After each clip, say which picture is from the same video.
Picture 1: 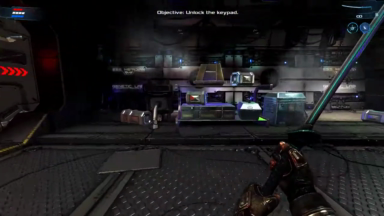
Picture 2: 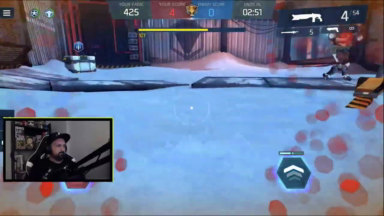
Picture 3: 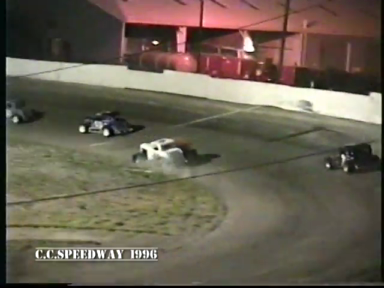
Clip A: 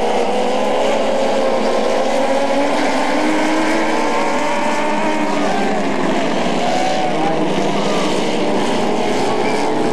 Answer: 3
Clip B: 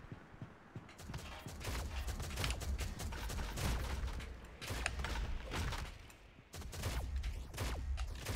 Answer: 2